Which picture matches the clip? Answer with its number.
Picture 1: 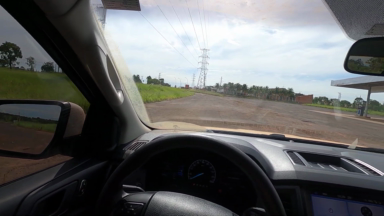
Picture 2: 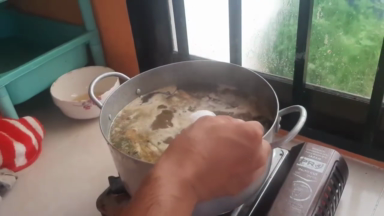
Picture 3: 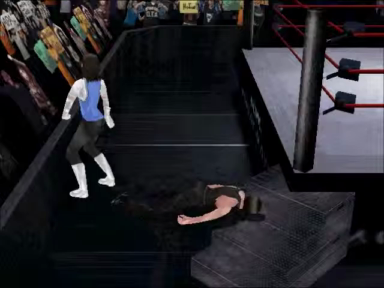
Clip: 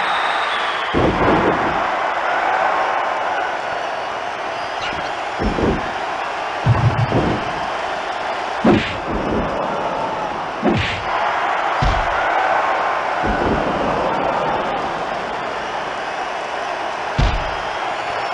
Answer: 3